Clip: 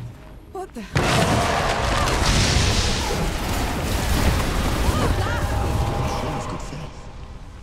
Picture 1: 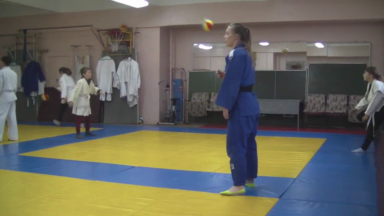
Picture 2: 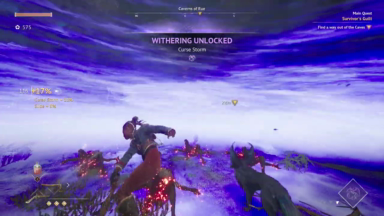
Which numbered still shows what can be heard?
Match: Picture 2